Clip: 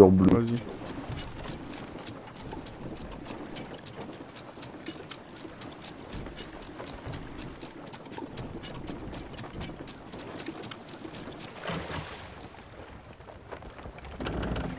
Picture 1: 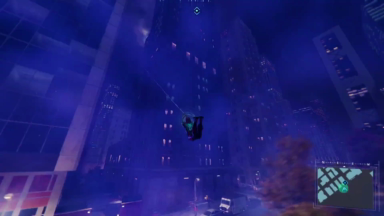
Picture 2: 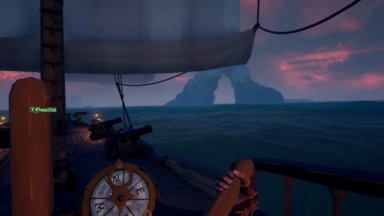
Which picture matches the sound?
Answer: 2